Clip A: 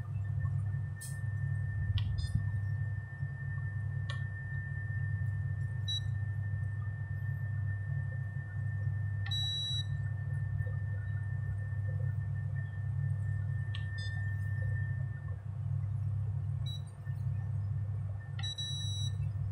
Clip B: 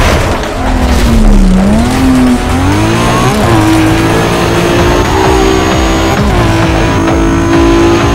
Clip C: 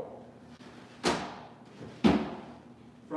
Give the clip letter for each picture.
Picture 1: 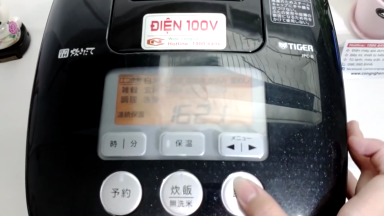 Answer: A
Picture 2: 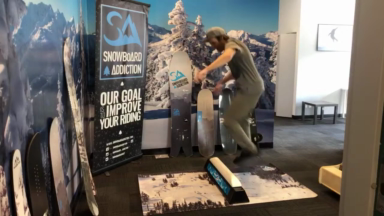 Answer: C